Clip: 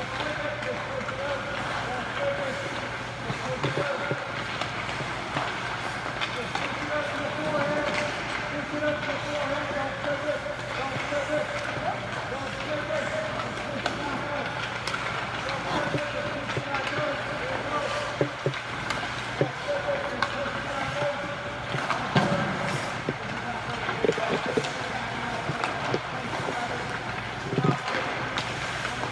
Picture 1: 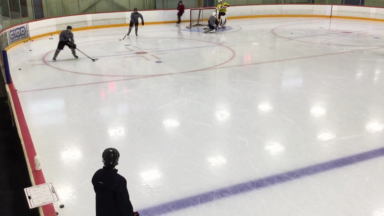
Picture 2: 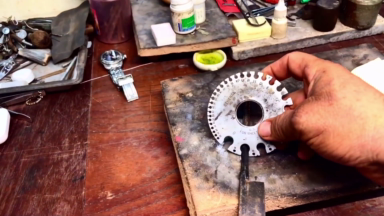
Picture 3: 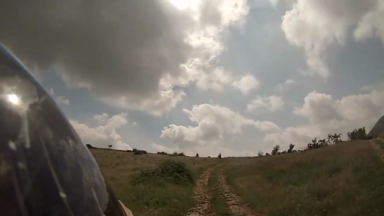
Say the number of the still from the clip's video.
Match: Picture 1